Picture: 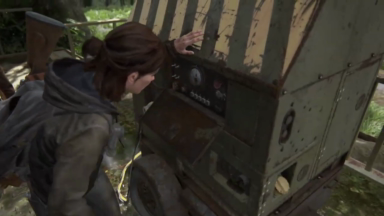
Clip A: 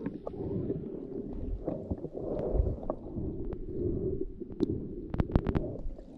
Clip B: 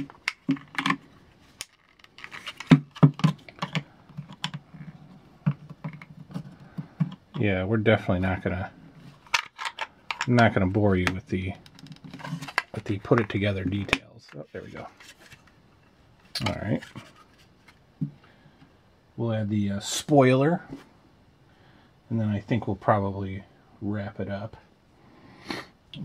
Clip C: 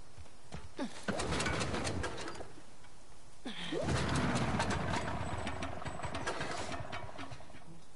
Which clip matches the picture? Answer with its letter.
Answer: C